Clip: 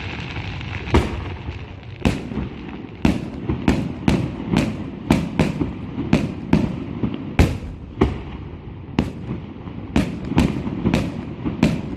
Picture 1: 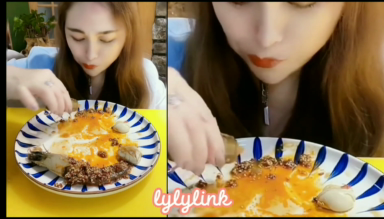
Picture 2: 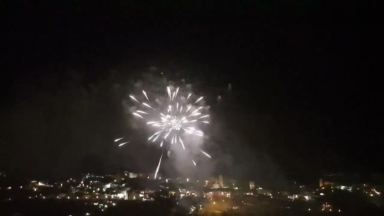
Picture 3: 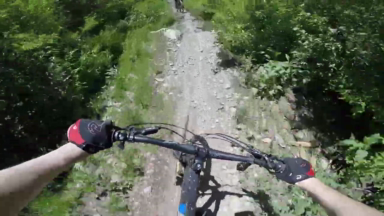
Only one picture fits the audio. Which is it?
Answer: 2